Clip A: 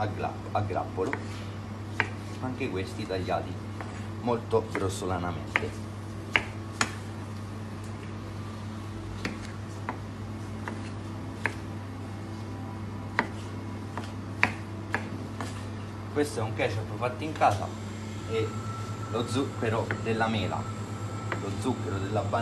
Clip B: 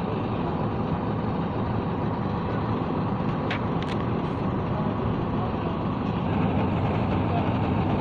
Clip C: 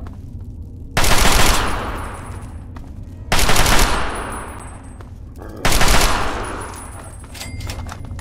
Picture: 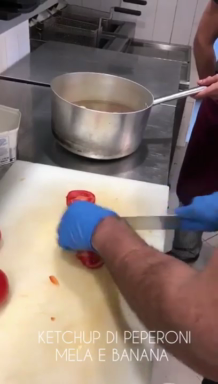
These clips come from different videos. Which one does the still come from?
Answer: A